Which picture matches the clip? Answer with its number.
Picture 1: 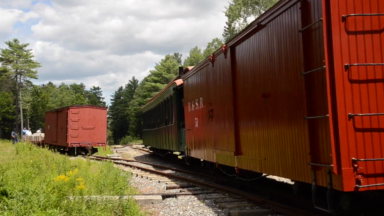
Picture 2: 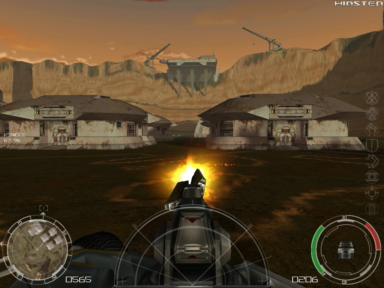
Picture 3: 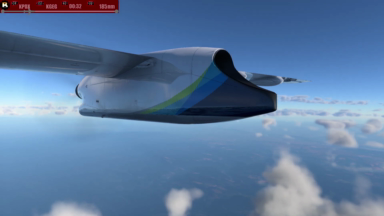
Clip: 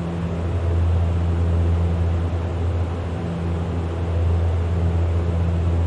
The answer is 3